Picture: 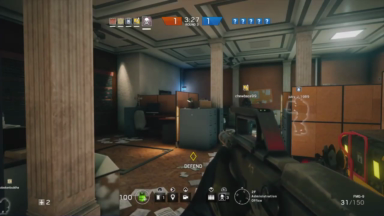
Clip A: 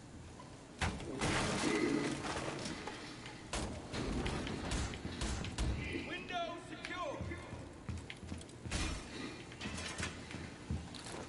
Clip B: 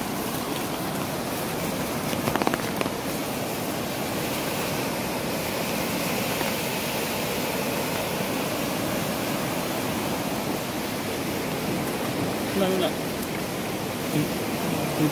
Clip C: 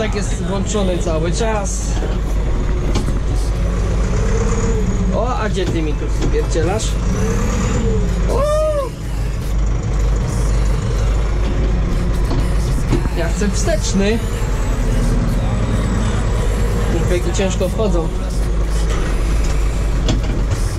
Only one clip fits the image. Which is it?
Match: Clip A